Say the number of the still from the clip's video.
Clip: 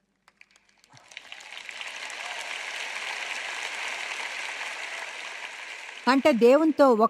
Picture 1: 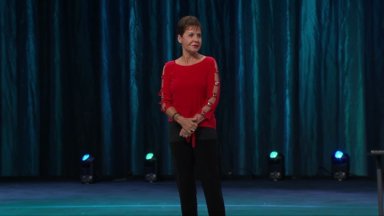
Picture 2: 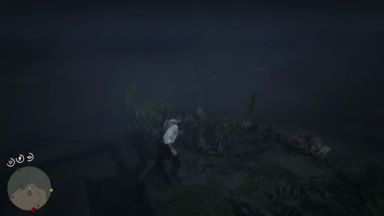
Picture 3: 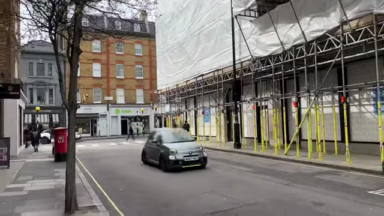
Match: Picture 1